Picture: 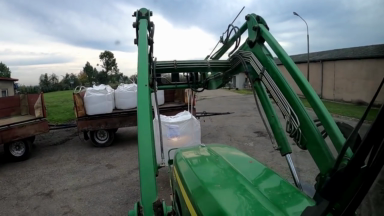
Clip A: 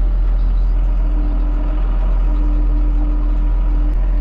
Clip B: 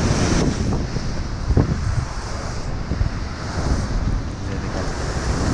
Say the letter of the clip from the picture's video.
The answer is A